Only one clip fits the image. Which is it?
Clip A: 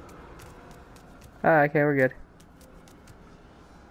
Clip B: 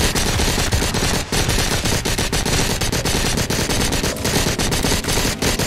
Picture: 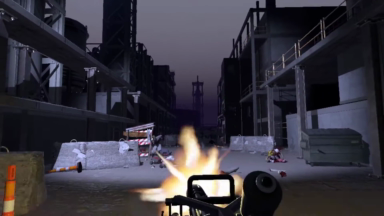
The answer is B